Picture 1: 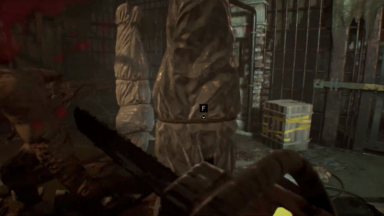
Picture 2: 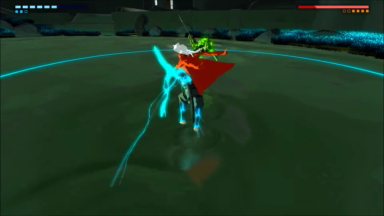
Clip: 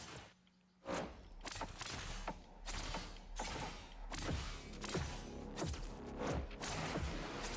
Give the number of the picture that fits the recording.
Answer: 2